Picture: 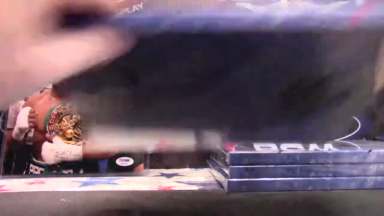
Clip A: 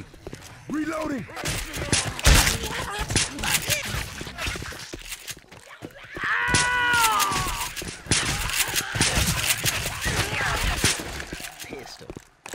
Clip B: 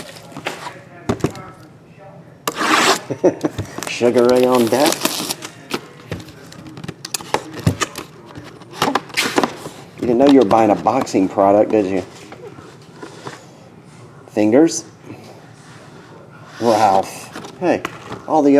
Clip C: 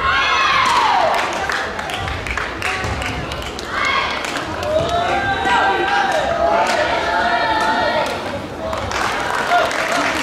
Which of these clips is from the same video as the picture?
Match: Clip B